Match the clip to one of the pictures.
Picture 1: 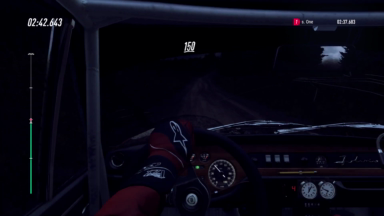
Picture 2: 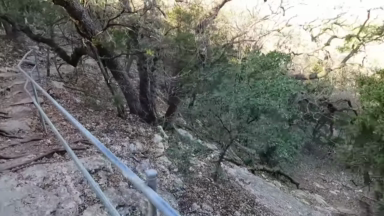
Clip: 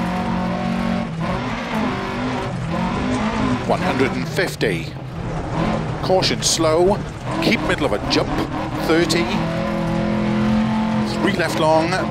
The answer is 1